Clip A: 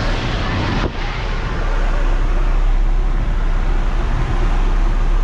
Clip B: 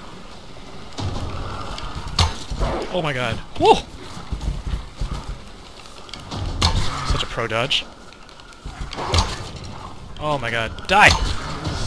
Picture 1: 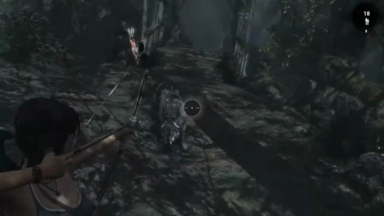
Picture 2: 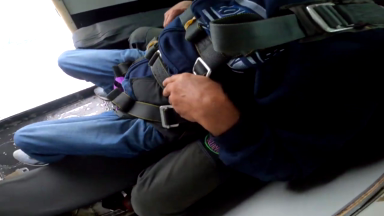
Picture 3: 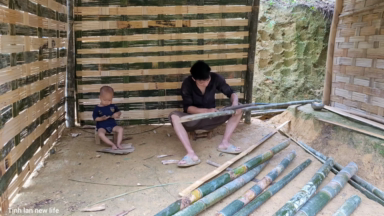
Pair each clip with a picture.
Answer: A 2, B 1